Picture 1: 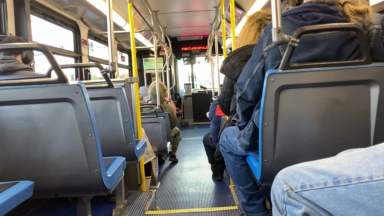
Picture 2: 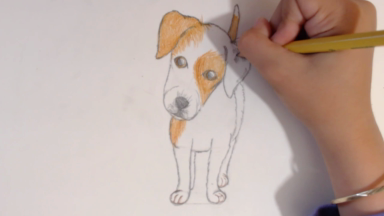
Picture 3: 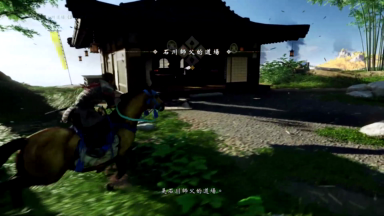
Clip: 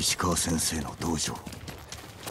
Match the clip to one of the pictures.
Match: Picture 3